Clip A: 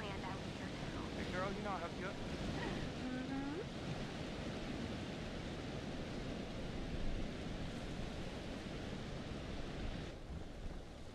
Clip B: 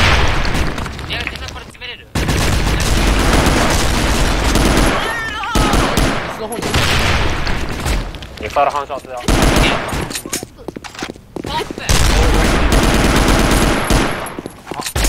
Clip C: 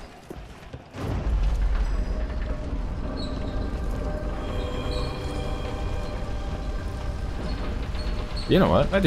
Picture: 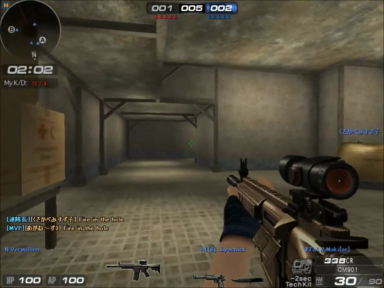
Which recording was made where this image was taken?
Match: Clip B